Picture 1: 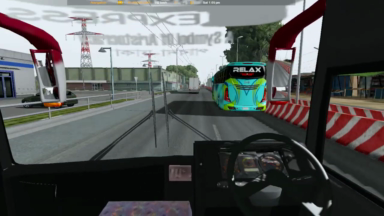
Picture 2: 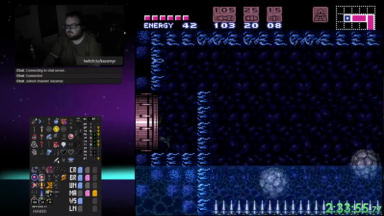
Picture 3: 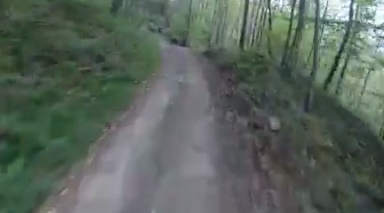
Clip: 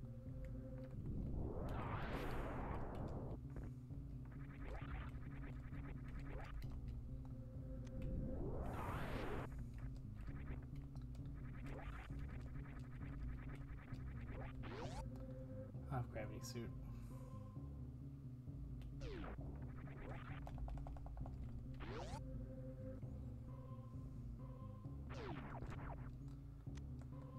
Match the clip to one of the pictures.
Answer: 2